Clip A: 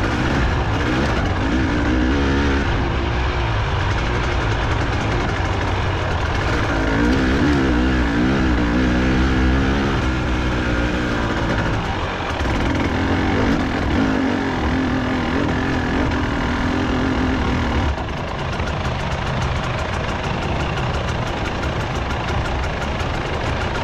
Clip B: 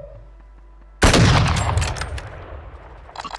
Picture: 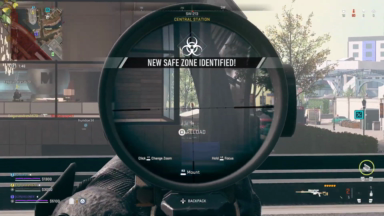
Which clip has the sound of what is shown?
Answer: B